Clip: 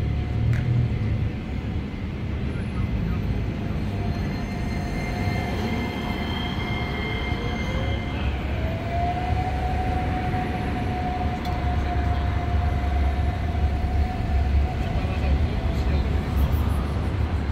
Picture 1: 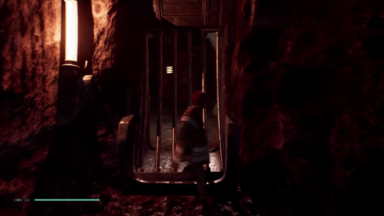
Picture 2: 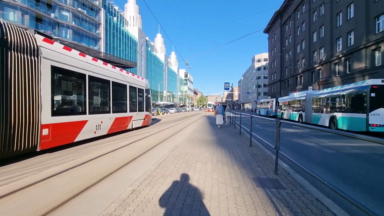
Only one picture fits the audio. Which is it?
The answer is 2